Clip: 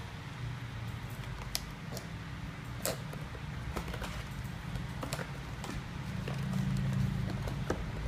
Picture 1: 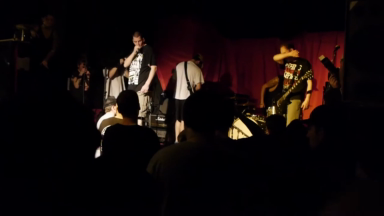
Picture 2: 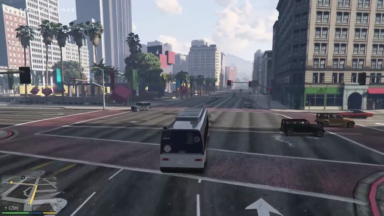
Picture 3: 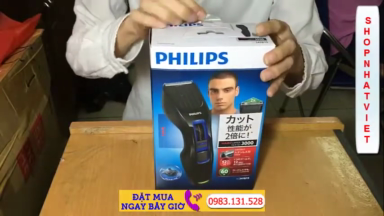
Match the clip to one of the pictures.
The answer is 3